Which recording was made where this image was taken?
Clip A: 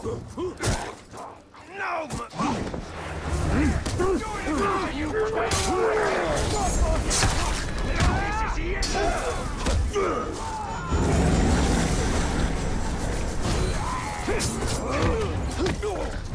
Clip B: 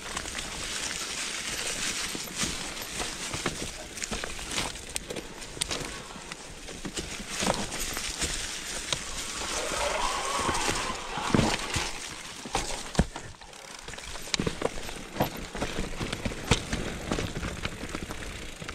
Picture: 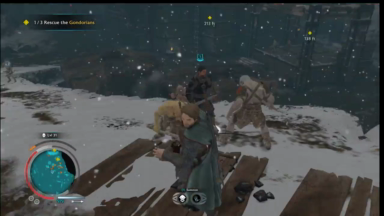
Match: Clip A